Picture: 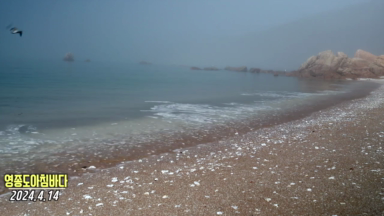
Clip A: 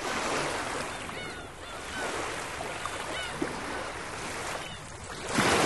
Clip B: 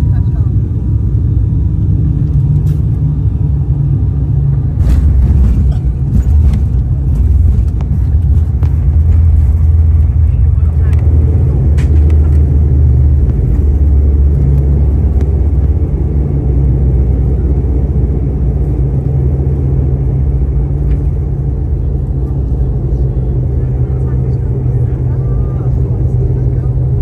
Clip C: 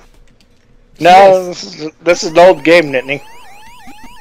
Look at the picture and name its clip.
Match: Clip A